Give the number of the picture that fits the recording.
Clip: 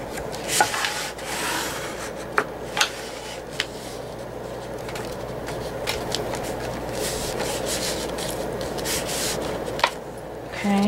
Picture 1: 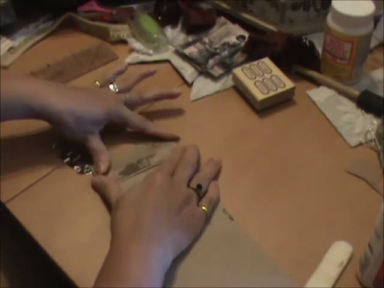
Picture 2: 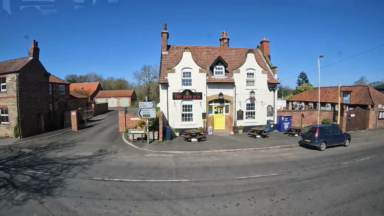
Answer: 1